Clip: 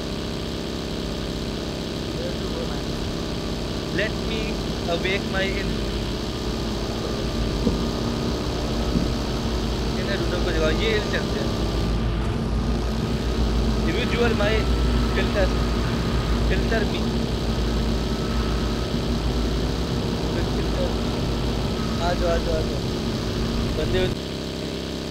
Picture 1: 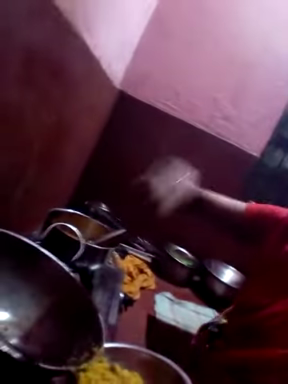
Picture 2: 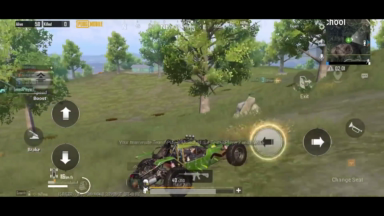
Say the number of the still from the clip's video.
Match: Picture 2